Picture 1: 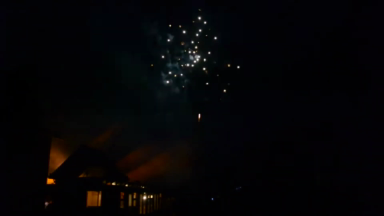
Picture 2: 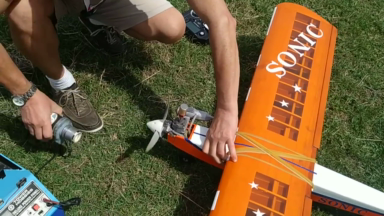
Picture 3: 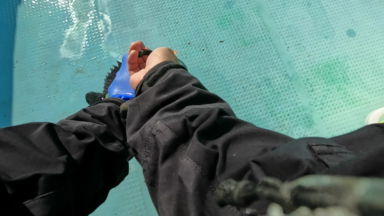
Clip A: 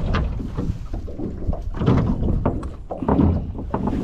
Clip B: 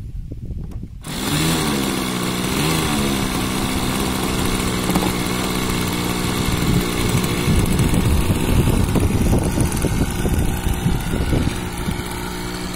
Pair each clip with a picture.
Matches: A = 3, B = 2